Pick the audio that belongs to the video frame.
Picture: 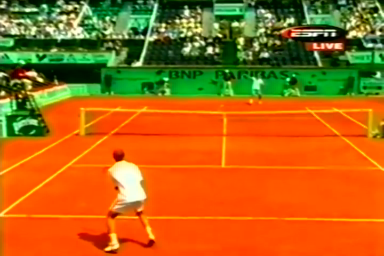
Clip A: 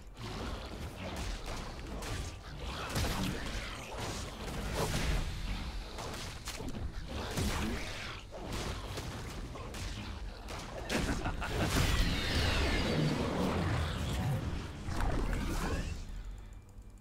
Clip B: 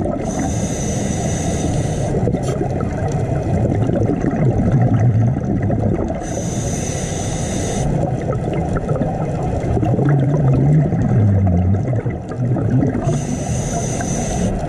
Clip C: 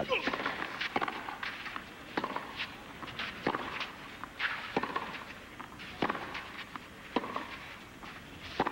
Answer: C